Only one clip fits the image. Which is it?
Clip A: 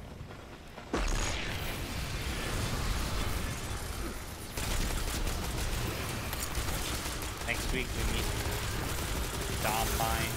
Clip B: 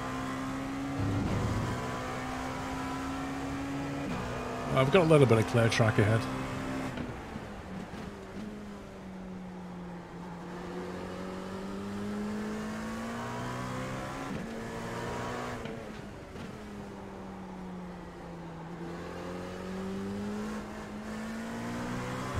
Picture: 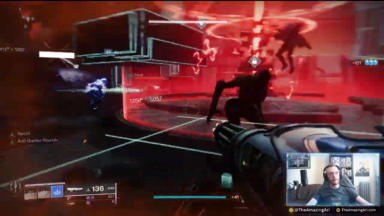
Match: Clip A